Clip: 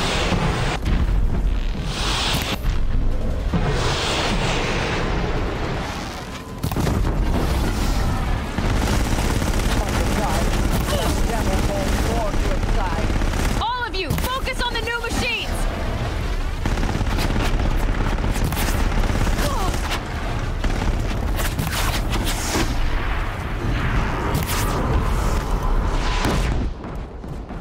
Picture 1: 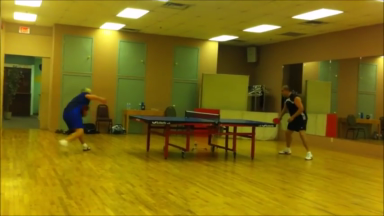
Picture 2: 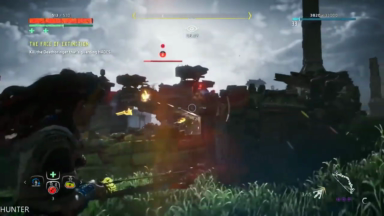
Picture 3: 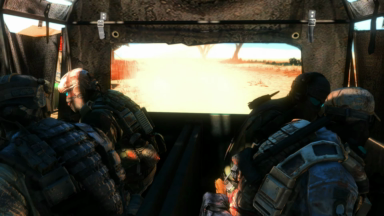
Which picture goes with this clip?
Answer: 2